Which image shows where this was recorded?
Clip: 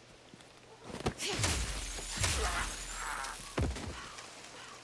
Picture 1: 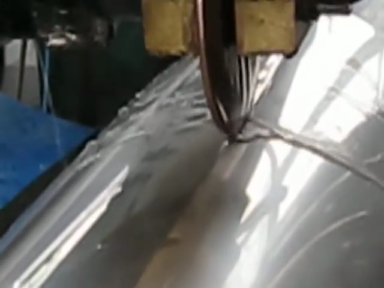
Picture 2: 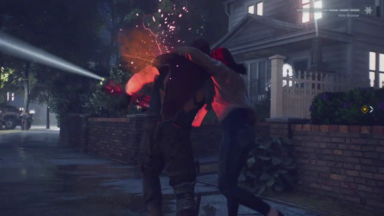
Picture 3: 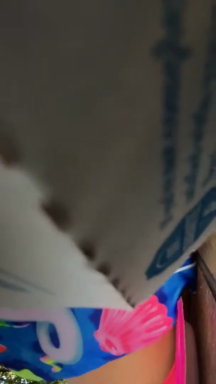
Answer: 2